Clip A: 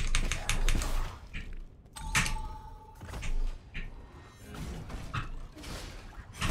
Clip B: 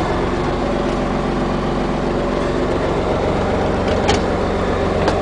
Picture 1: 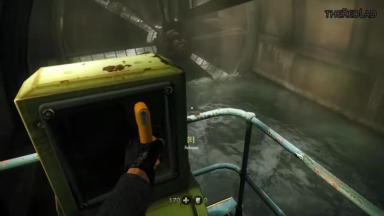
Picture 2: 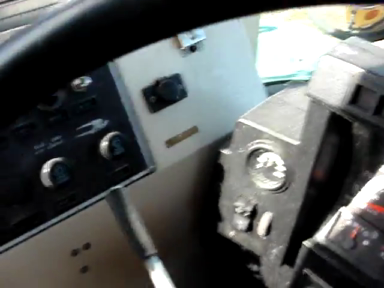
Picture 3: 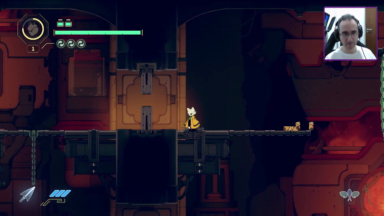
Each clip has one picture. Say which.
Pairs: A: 3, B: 2